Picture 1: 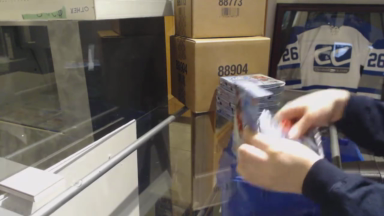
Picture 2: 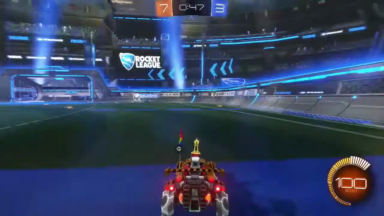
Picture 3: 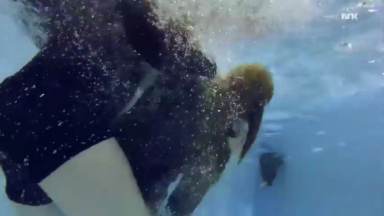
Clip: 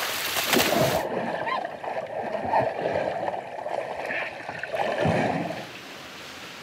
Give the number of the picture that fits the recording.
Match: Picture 3